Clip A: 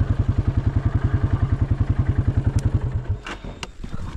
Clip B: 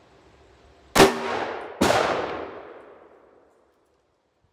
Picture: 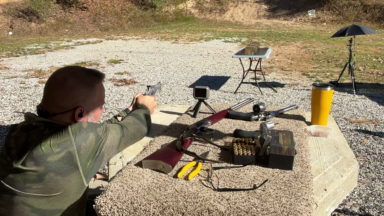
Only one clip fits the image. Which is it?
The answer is B